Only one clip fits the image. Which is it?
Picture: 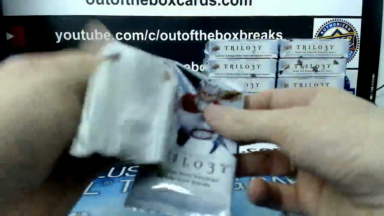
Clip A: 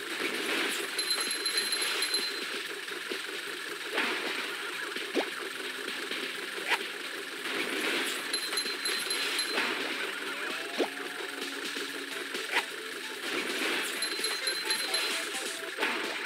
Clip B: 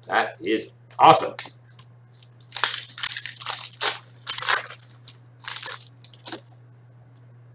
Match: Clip B